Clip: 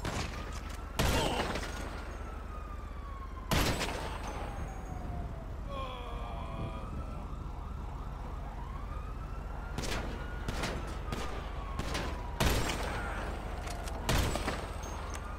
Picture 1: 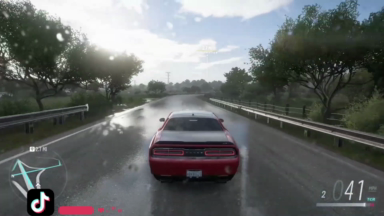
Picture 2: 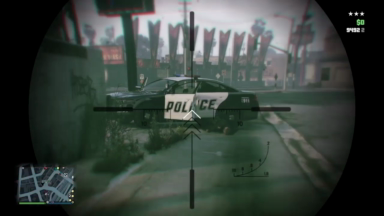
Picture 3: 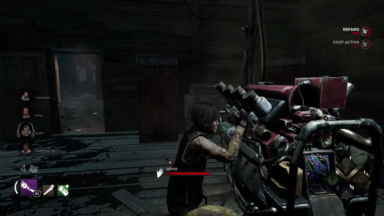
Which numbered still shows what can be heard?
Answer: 2